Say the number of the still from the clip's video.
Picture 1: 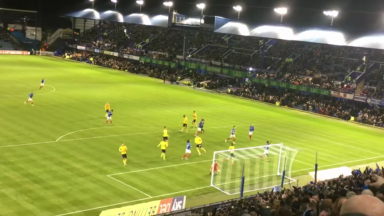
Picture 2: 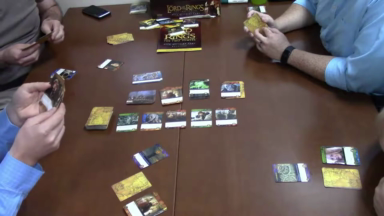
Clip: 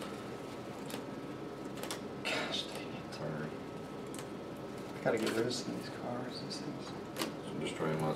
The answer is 2